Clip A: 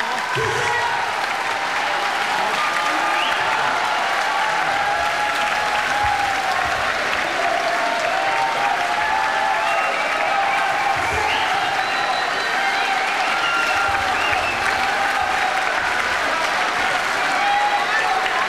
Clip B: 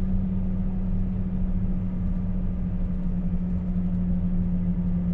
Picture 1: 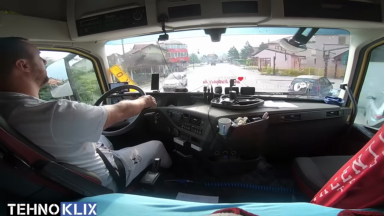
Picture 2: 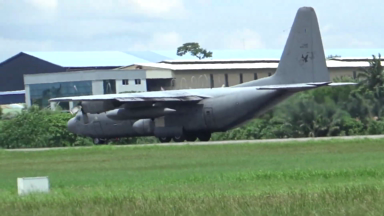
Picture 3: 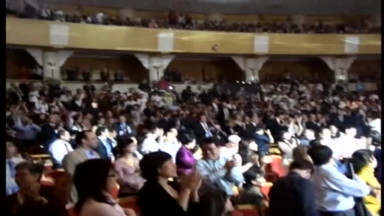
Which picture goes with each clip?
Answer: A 3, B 1